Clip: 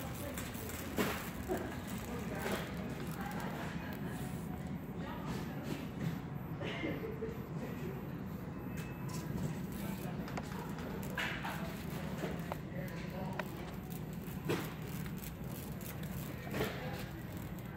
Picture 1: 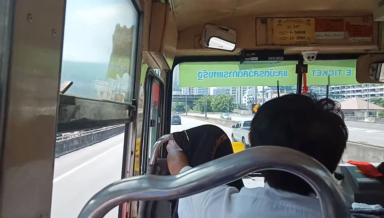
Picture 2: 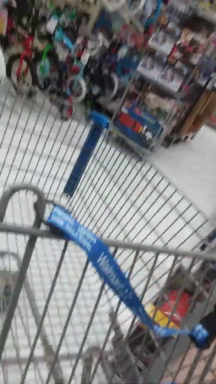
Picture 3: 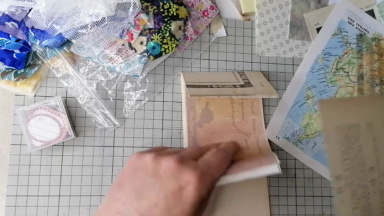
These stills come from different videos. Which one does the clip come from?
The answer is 2